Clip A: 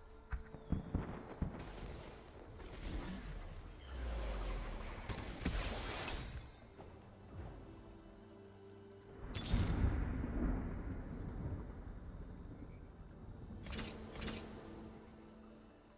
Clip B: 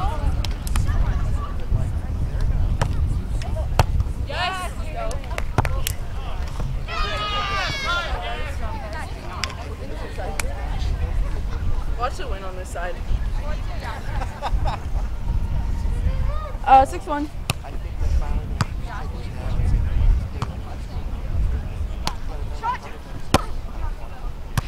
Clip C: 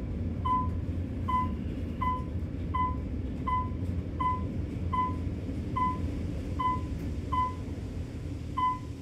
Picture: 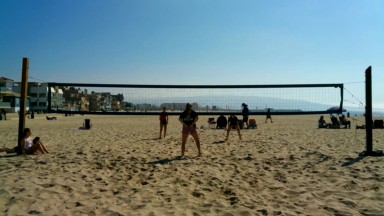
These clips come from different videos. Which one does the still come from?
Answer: B